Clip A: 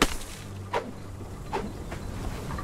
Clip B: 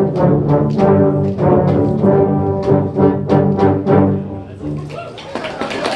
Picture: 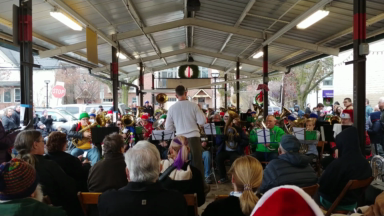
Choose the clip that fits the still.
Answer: B